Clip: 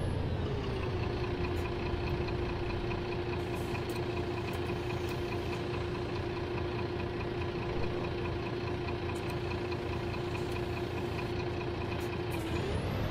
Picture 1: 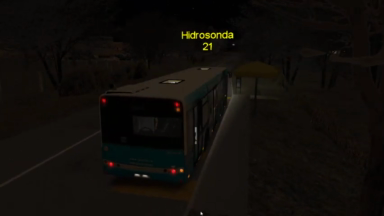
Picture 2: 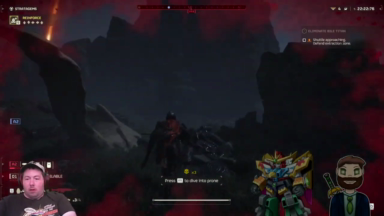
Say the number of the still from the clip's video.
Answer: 1